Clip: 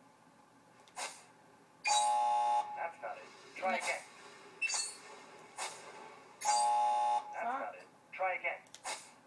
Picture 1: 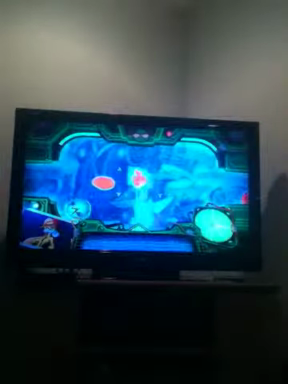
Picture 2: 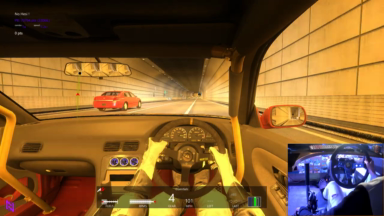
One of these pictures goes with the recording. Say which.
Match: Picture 1